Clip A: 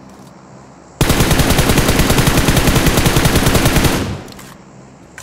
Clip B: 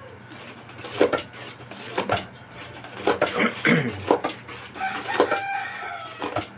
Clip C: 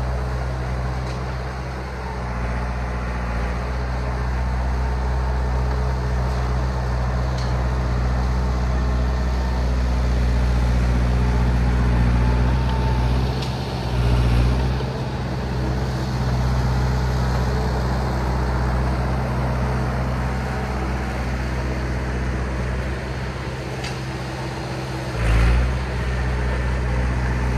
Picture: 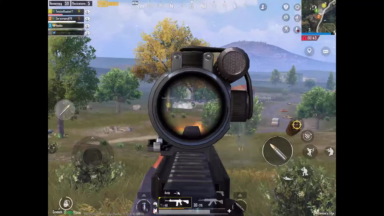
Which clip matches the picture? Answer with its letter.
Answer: A